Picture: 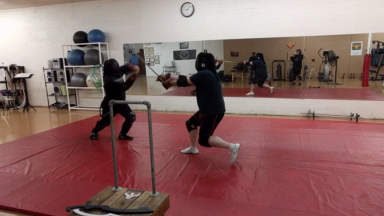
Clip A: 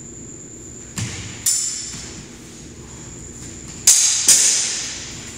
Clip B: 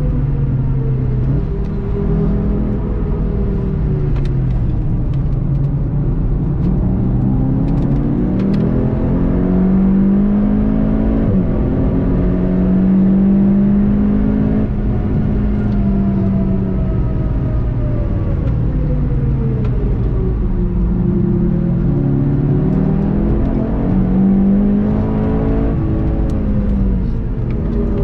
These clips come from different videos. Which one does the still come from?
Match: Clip A